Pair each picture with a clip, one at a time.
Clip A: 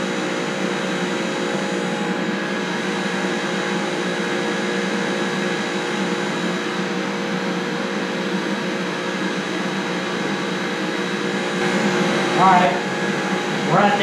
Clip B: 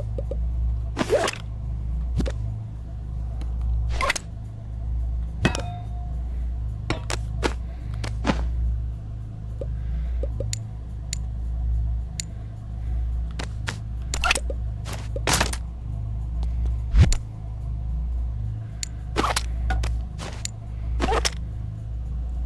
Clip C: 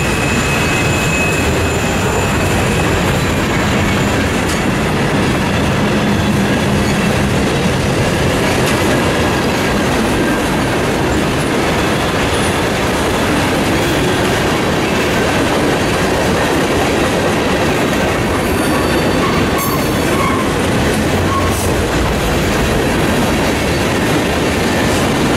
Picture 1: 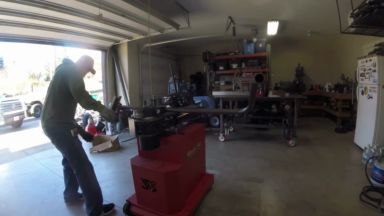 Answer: A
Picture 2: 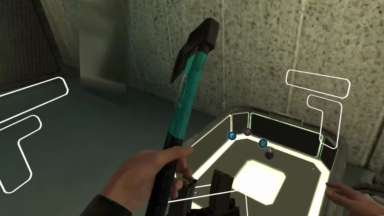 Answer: B